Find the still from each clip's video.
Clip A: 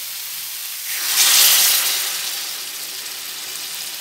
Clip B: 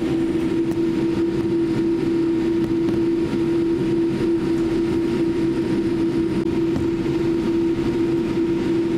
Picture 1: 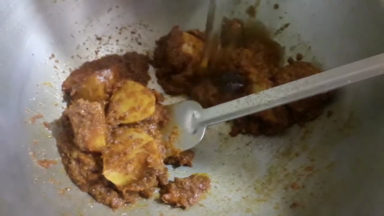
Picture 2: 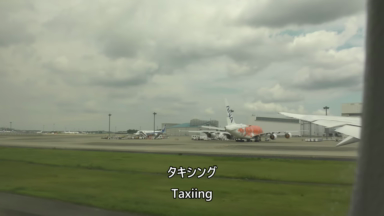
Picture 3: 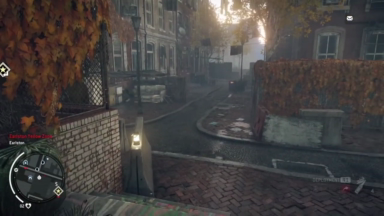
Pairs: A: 1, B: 2